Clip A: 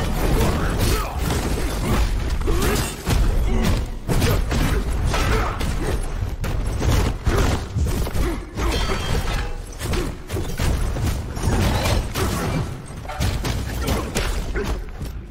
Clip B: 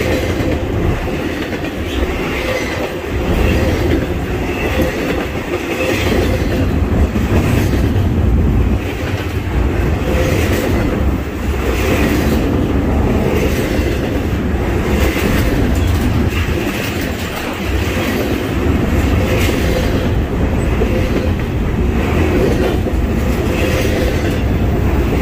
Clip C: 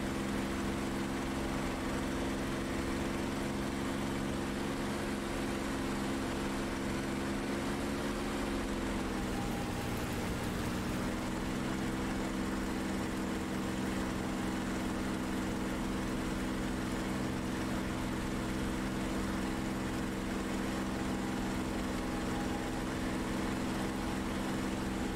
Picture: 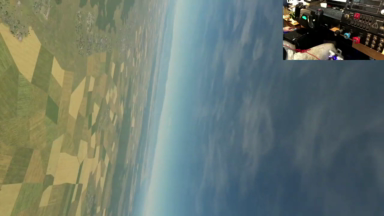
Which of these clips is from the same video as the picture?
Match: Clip C